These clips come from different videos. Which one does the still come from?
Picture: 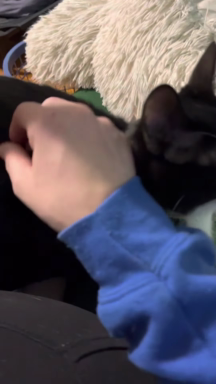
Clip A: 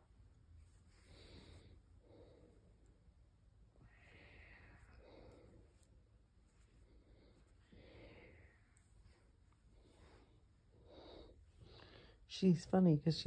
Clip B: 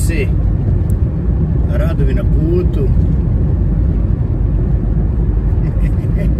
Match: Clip A